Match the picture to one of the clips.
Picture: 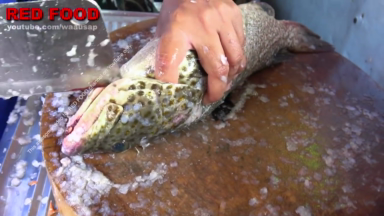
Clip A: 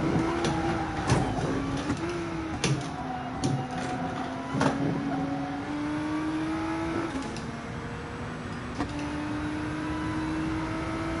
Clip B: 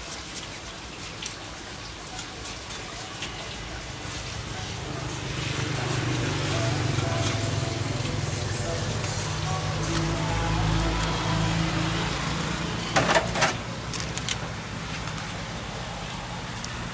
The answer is B